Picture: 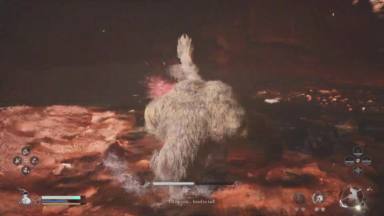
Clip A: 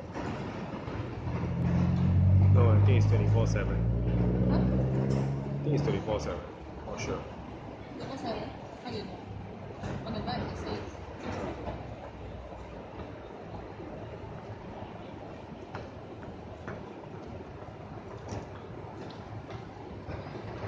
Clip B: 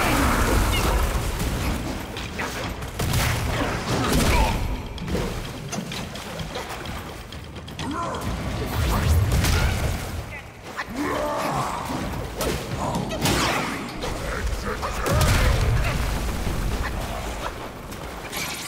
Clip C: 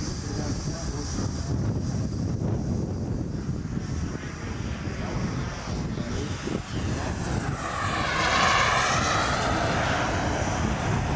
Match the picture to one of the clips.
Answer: B